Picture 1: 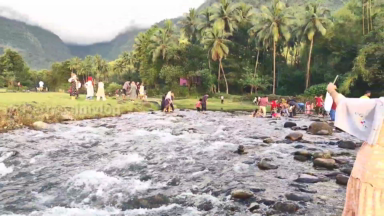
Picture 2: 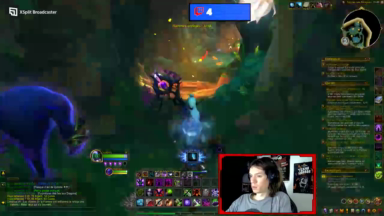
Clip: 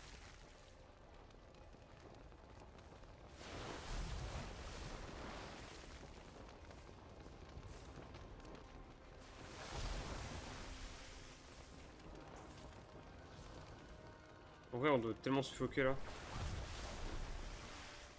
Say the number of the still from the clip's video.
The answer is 2